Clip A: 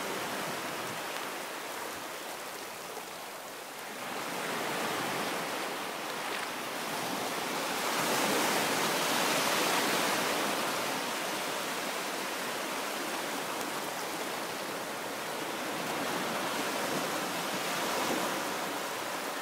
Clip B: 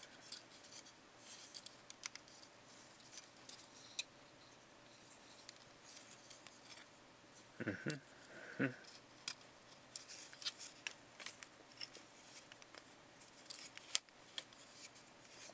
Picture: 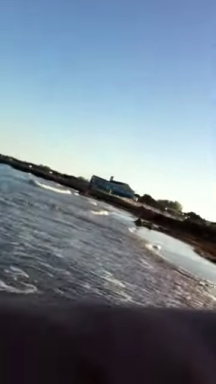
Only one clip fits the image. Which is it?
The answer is A